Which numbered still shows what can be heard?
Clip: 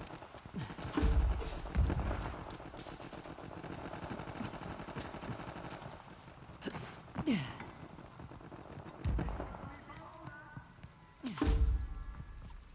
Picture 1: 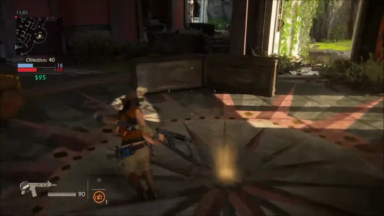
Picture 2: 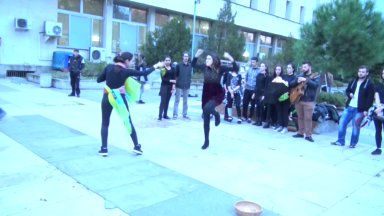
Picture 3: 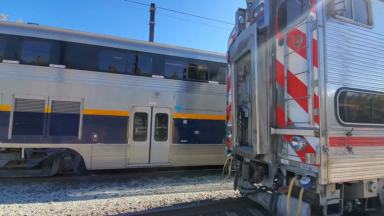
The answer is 1